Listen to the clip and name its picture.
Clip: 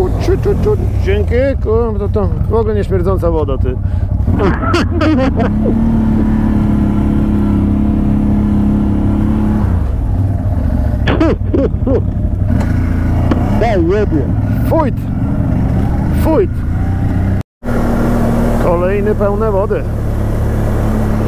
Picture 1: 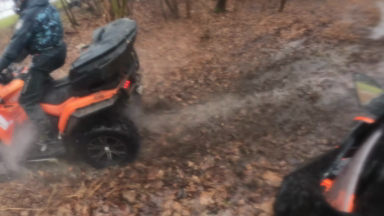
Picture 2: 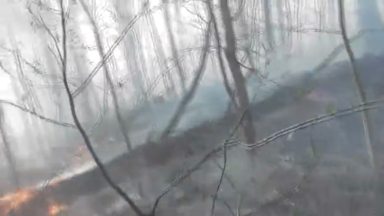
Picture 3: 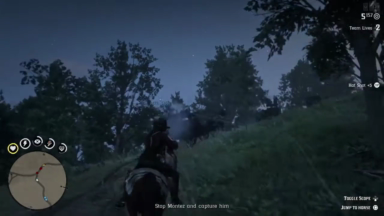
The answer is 1